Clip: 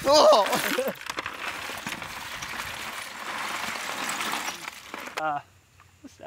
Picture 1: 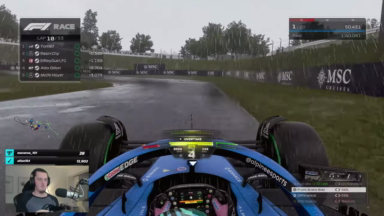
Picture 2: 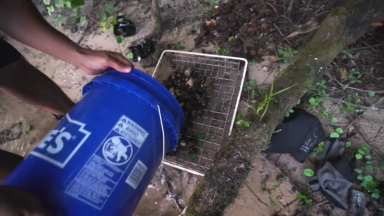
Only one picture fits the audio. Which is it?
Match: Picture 2